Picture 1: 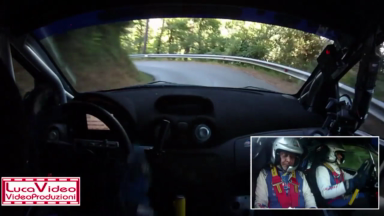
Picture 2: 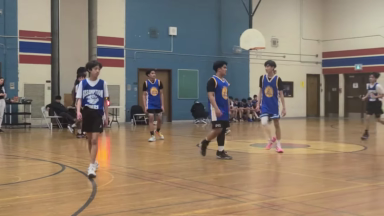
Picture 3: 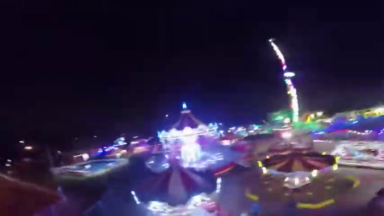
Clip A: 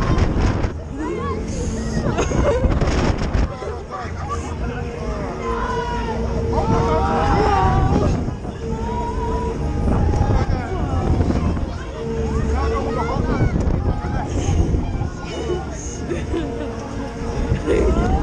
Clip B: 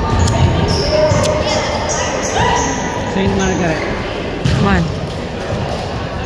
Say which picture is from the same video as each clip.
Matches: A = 3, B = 2